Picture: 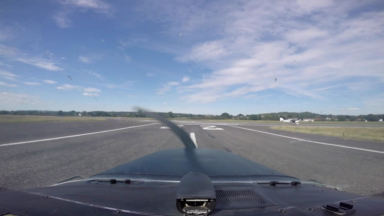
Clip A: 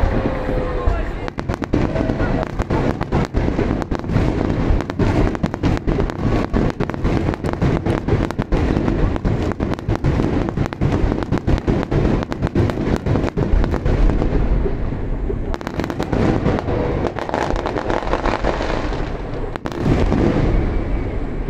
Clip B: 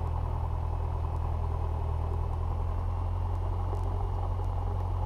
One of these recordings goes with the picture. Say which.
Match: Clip B